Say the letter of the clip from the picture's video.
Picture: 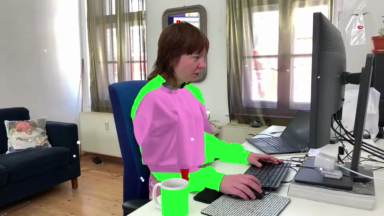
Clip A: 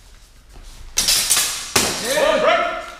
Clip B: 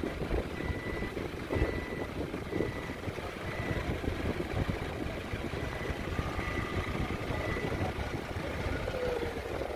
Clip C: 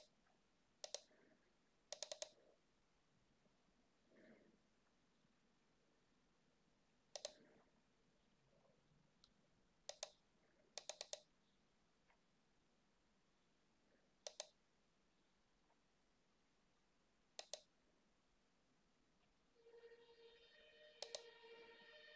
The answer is C